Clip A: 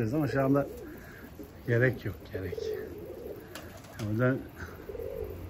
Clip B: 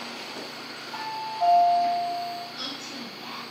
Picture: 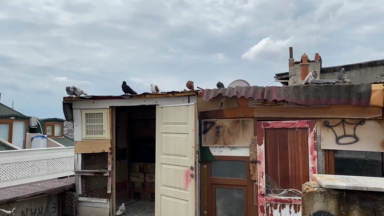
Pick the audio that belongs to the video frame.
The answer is A